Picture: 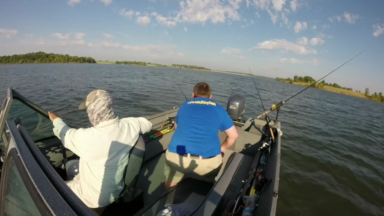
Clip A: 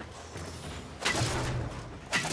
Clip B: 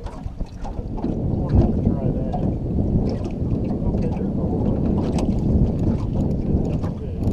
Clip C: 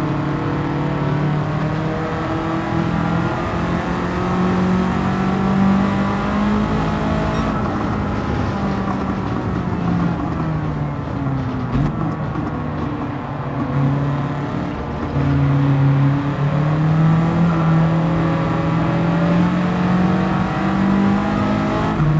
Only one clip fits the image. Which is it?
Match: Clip B